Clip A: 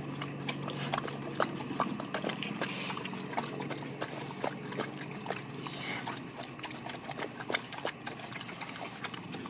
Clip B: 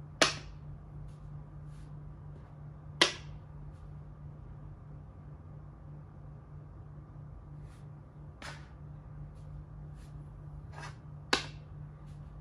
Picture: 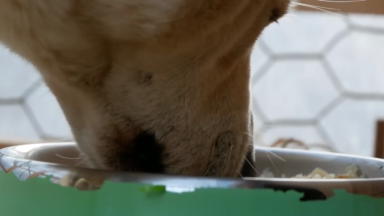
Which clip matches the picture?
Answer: A